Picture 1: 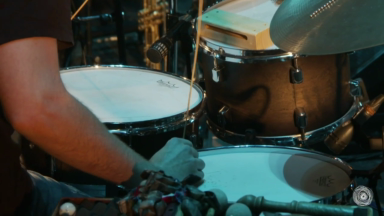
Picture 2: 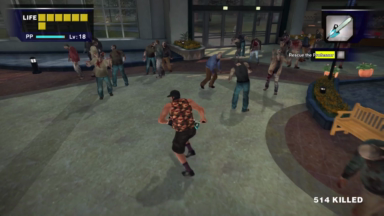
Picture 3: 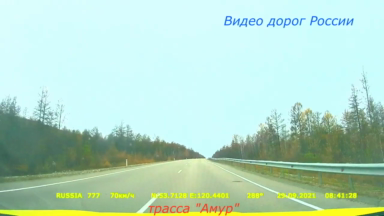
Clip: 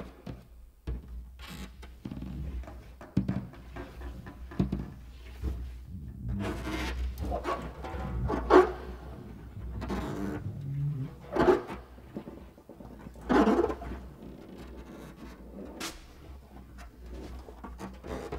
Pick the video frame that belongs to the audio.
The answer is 1